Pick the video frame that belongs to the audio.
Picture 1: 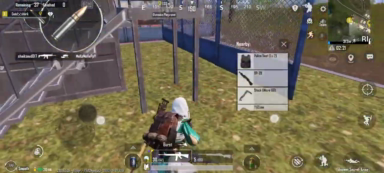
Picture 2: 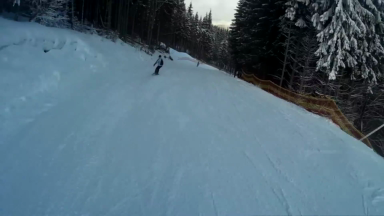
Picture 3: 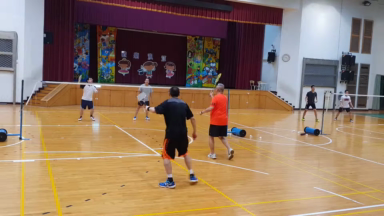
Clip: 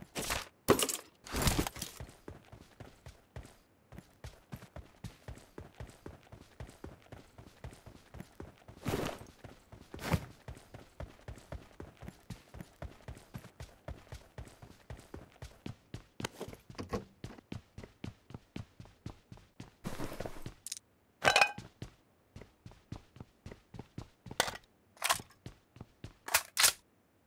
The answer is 1